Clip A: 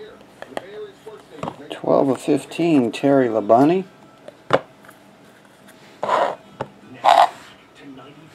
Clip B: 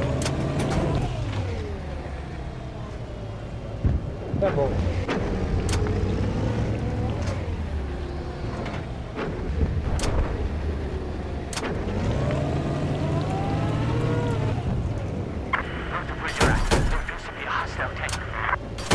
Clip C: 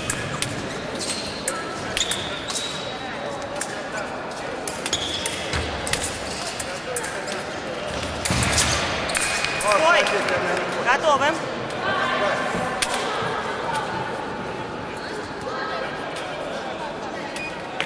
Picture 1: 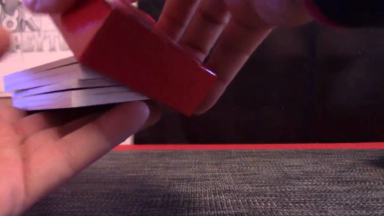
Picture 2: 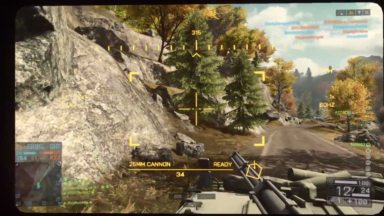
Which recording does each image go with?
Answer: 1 A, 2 B